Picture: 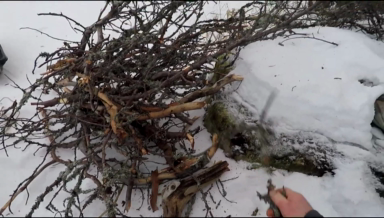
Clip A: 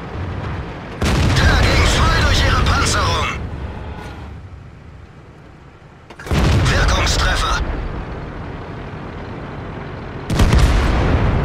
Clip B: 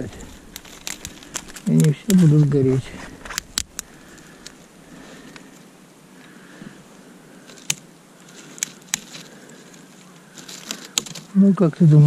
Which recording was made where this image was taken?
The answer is B